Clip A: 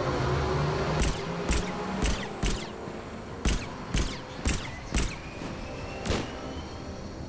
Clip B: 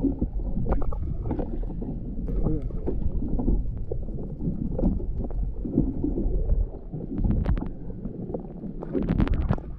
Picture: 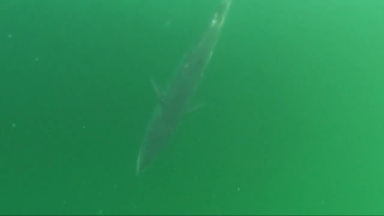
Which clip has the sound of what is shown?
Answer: B